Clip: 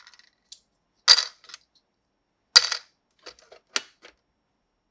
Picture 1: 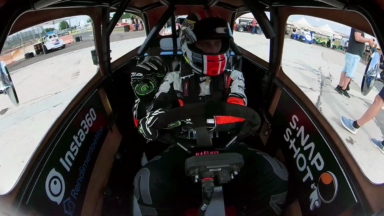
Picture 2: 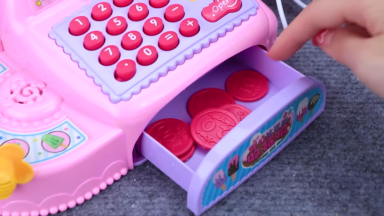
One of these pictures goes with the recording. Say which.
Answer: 2